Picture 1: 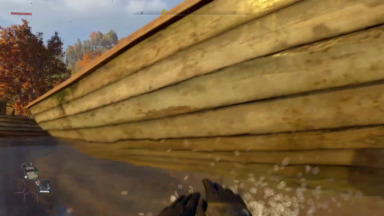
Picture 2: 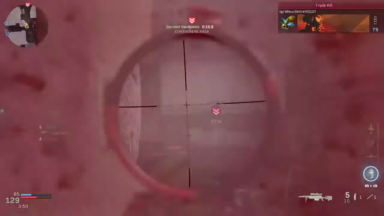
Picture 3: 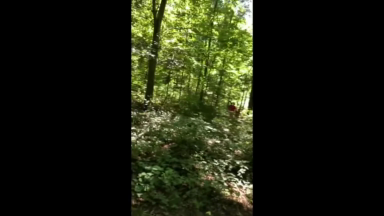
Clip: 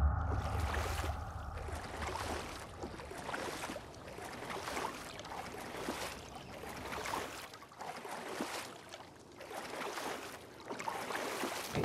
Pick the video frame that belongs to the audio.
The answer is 1